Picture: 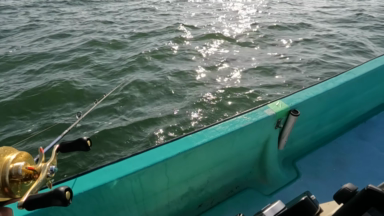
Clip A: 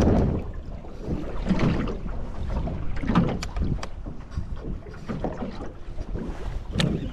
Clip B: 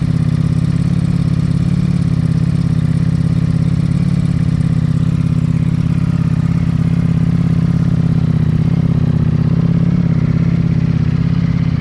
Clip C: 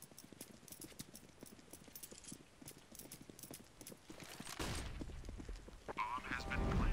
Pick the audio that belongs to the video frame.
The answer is A